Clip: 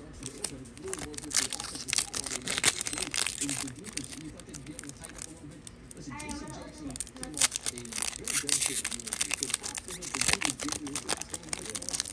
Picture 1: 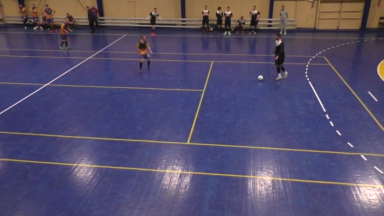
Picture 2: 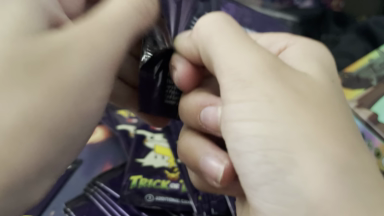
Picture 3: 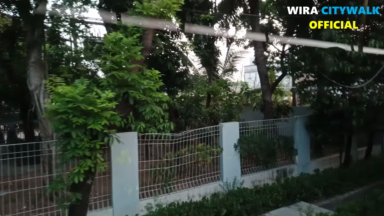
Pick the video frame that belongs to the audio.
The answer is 2